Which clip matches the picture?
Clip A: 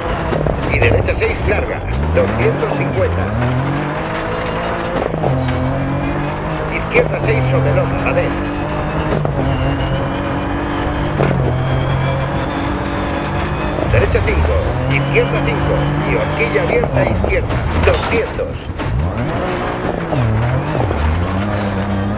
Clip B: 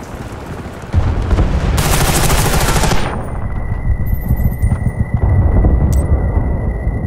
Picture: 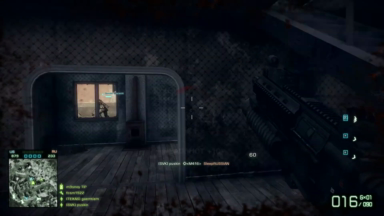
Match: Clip B